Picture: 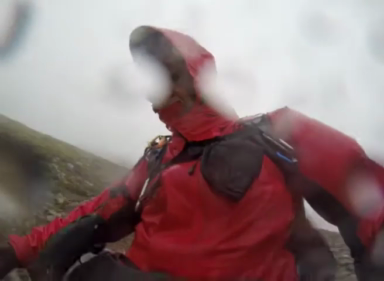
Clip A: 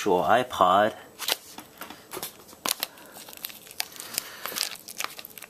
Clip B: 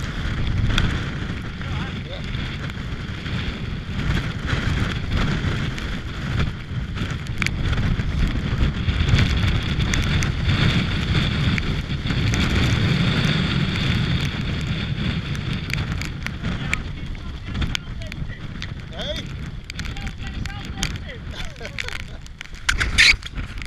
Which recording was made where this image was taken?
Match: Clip B